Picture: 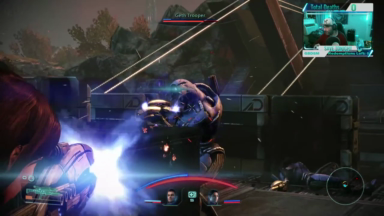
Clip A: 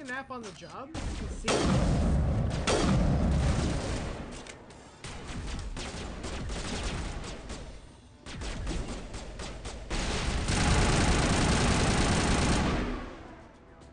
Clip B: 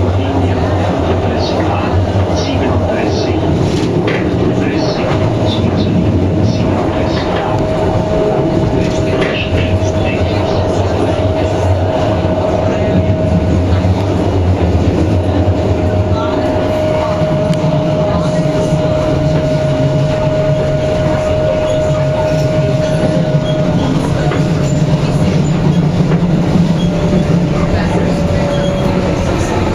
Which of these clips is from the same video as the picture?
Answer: A